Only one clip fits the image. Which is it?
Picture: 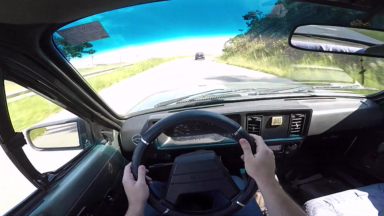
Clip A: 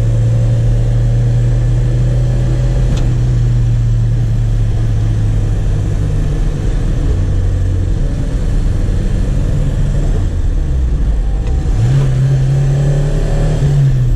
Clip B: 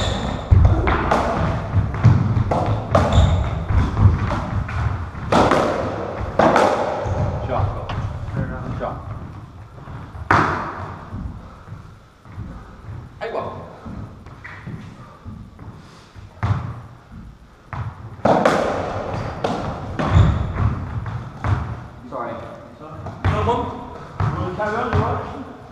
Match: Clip A